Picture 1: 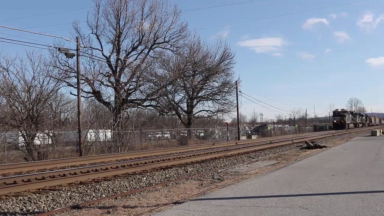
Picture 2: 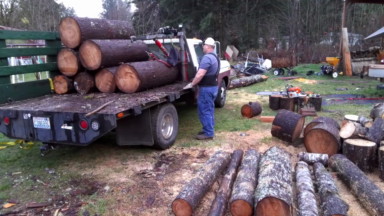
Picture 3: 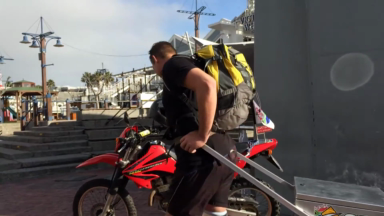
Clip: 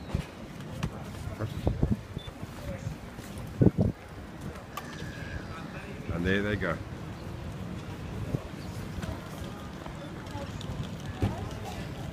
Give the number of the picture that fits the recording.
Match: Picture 3